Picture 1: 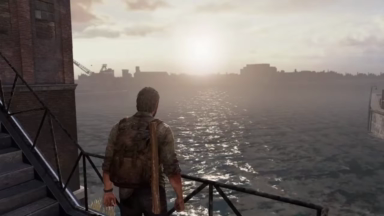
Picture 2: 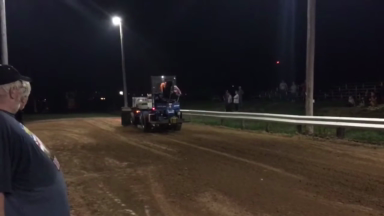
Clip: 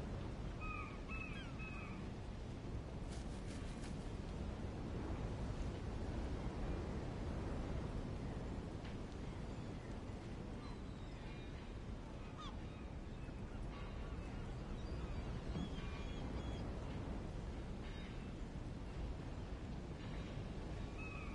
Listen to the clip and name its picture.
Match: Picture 1